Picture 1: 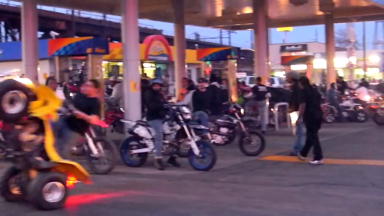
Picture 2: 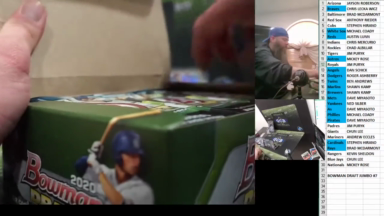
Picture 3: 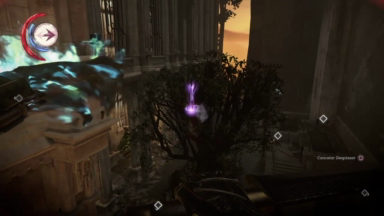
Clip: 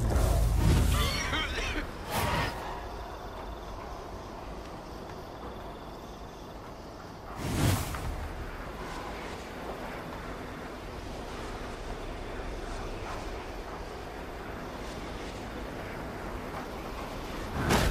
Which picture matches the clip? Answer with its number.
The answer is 3